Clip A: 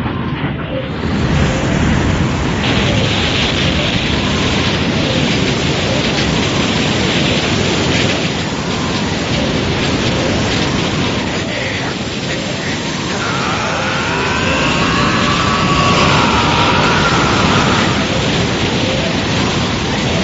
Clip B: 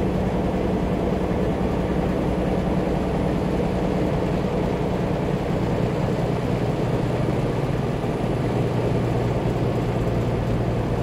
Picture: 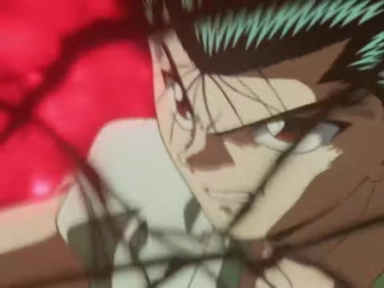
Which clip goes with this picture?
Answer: A